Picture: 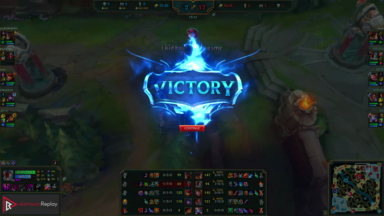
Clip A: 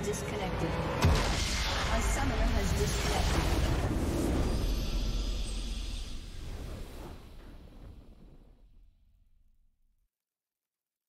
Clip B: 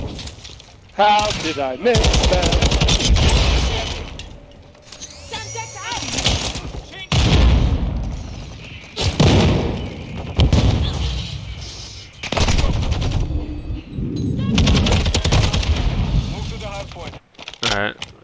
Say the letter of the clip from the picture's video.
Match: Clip A